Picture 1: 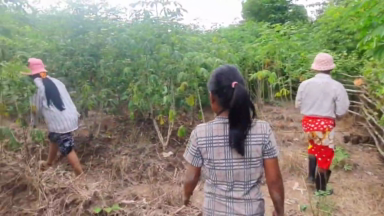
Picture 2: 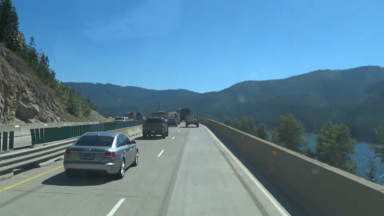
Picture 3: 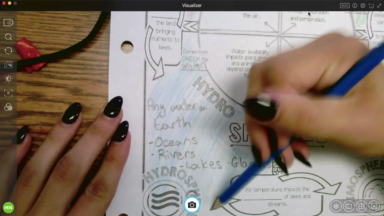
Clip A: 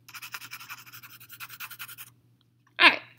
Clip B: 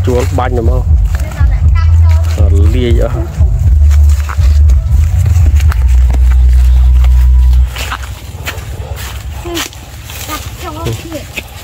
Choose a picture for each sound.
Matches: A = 3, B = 1